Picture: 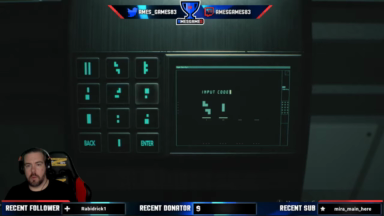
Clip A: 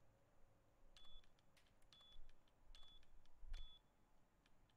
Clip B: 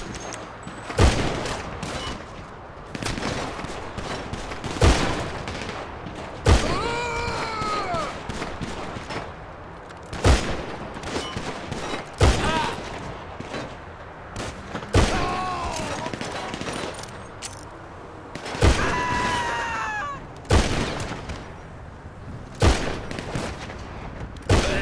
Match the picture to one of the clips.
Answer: A